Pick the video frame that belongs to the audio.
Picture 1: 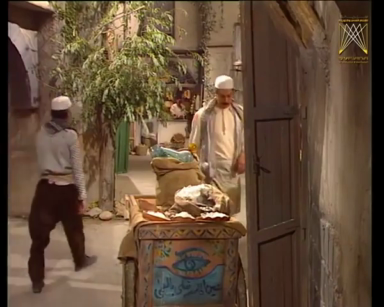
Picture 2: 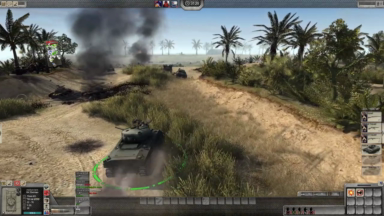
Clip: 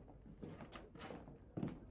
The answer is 1